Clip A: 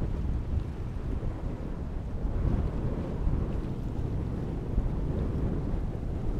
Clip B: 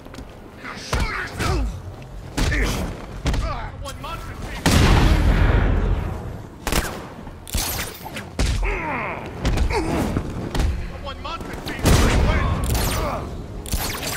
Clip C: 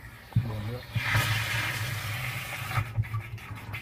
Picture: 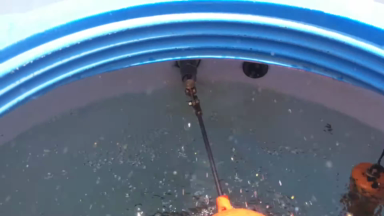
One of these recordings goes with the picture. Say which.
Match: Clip C